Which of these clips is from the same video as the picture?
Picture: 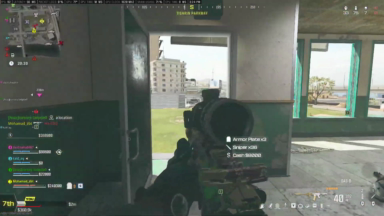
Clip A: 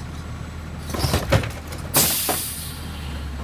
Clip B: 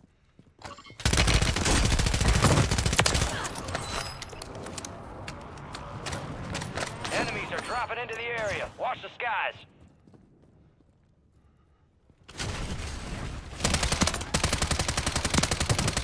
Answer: B